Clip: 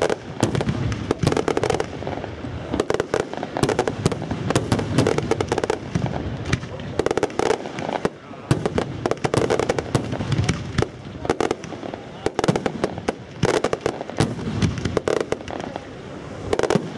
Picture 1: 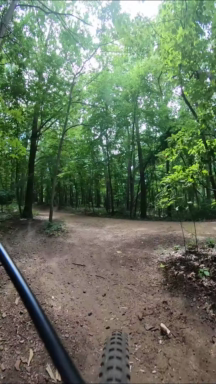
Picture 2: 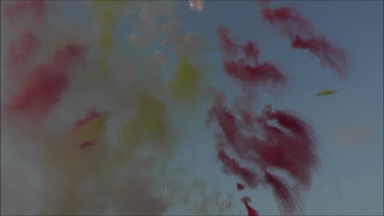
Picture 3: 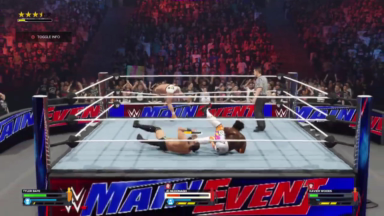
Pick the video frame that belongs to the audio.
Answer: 2